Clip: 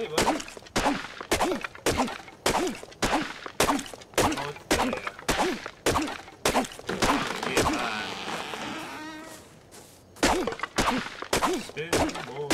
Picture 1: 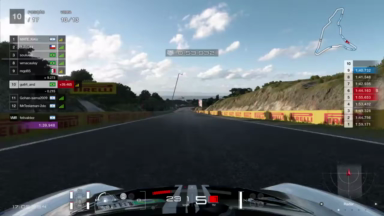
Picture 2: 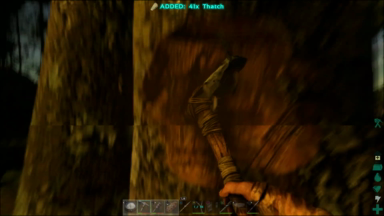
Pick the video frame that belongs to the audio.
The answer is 2